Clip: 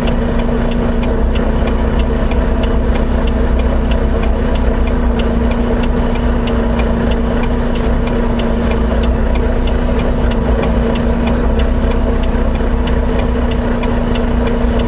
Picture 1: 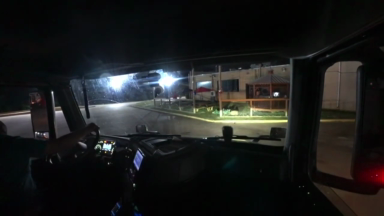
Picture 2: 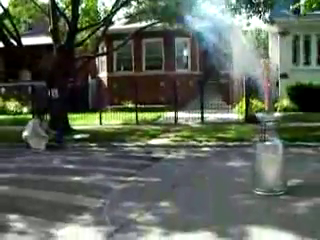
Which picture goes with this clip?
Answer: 1